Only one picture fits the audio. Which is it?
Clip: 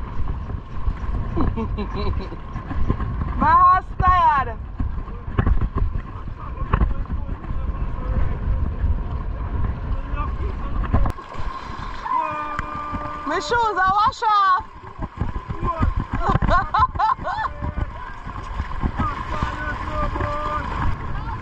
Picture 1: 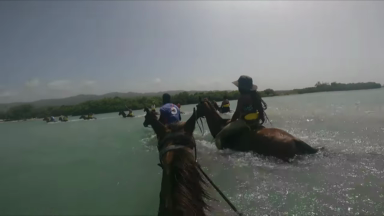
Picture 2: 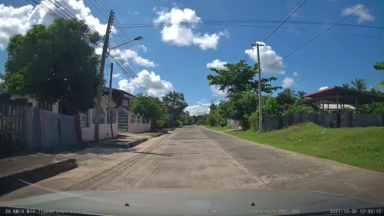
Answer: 1